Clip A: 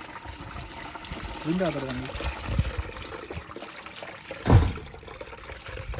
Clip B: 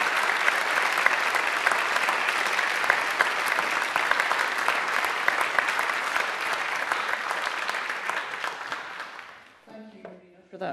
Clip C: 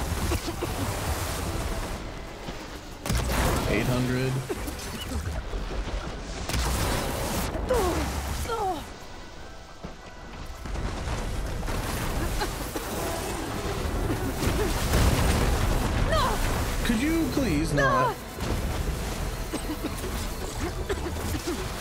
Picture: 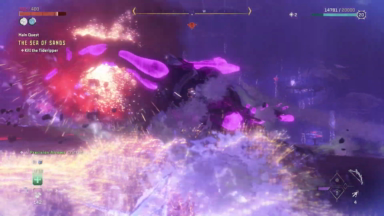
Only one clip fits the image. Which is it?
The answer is C